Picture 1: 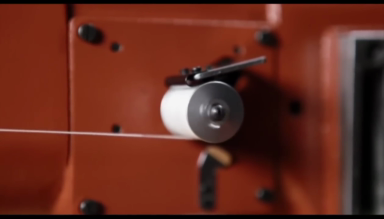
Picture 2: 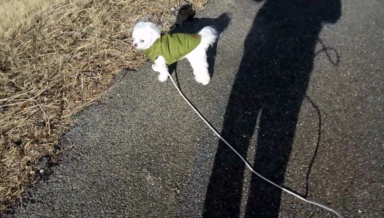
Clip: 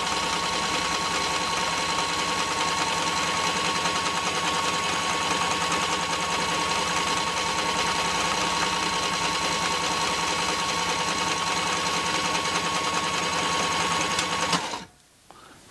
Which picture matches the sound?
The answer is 1